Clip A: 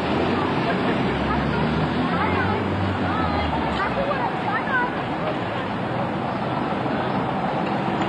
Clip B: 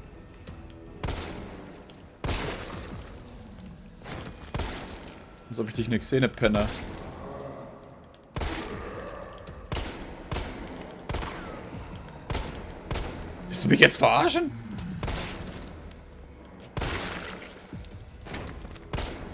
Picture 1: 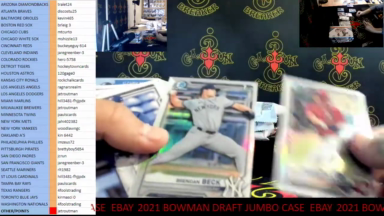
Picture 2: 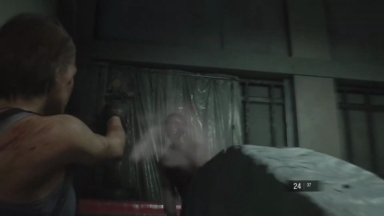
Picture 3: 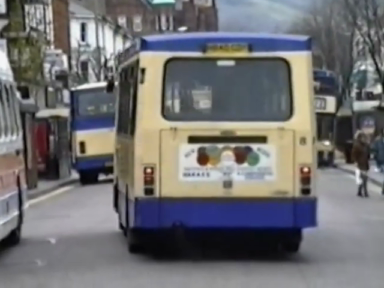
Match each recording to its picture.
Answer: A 3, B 2